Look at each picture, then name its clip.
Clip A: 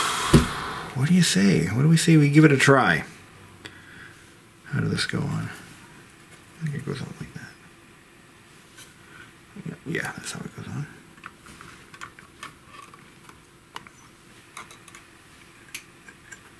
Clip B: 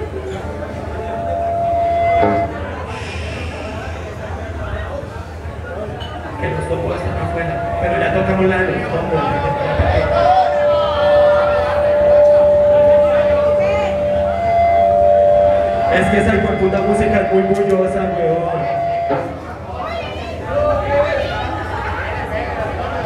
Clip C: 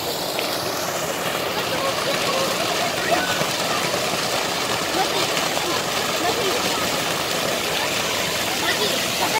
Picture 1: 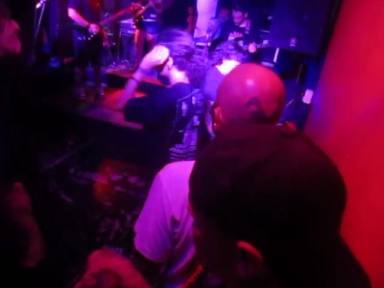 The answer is B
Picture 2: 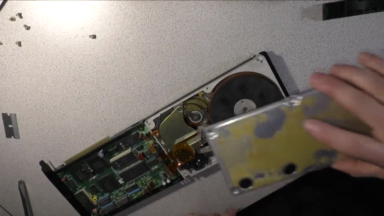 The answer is A